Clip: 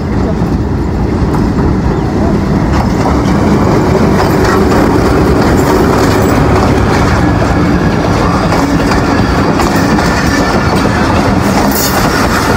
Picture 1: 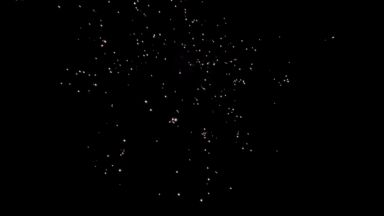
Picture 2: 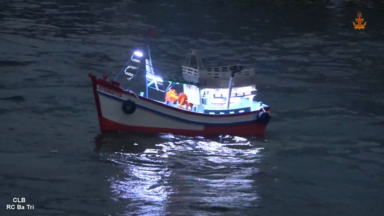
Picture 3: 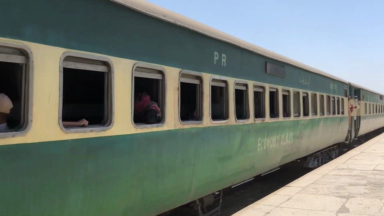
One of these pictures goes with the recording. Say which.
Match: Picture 3